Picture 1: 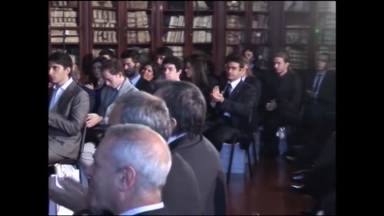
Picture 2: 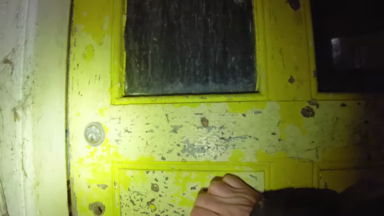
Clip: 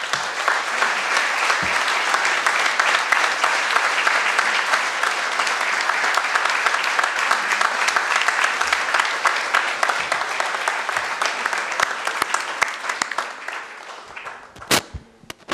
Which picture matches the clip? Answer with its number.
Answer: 1